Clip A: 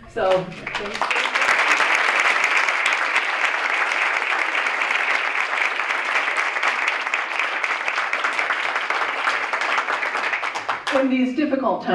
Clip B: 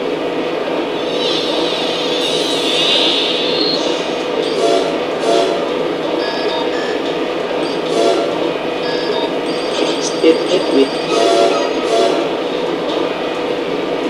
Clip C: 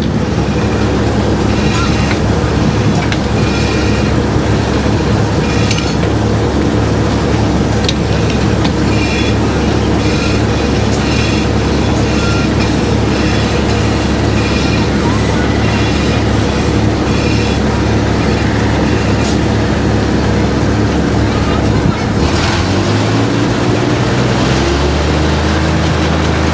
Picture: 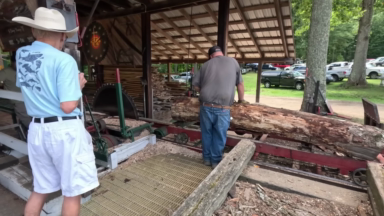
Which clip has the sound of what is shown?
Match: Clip C